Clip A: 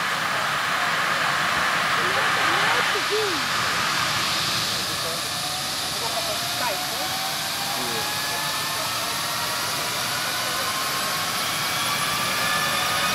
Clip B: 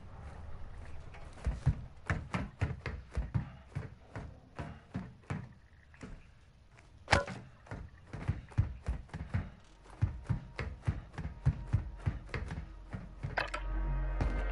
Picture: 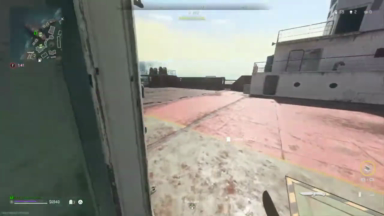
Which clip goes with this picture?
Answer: B